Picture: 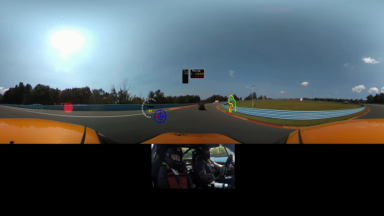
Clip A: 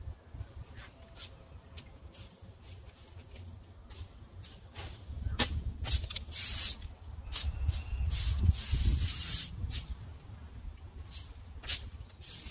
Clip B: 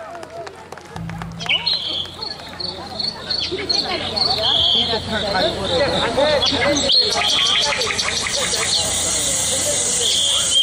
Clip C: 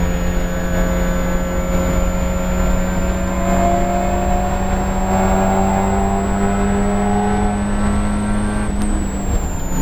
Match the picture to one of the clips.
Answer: C